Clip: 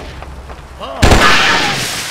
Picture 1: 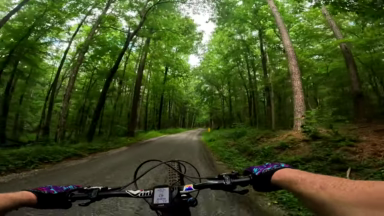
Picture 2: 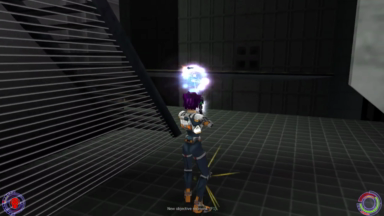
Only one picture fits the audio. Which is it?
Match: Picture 2